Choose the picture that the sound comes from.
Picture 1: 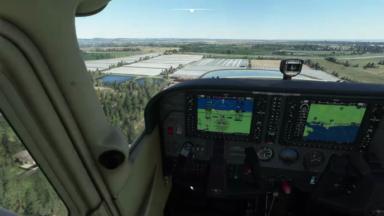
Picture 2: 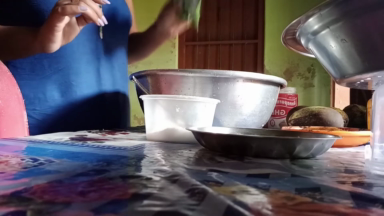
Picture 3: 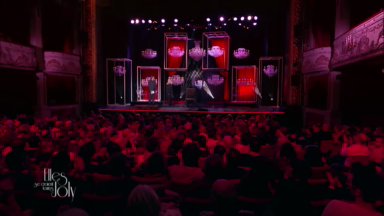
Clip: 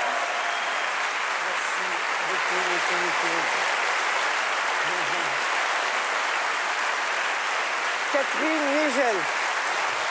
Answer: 3